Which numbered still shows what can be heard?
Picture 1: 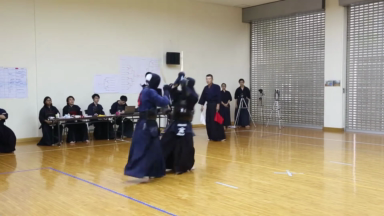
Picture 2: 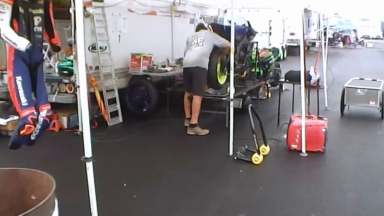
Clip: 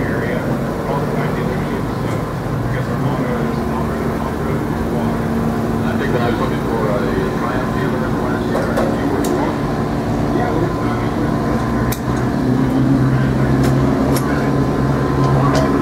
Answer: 2